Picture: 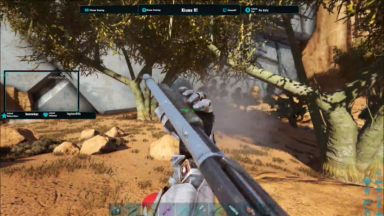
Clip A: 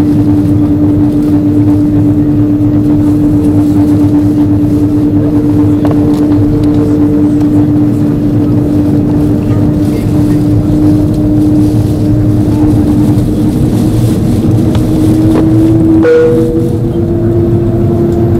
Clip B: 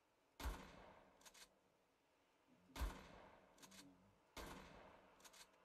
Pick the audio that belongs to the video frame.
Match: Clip B